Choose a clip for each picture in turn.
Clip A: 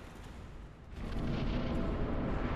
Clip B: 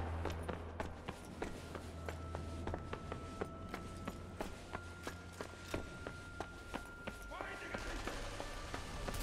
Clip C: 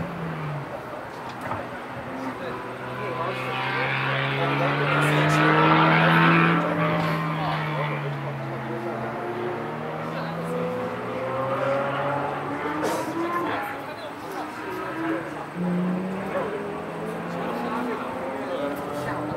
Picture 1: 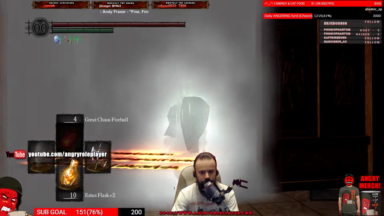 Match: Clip A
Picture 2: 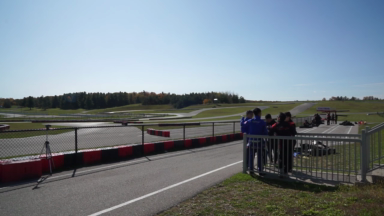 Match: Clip C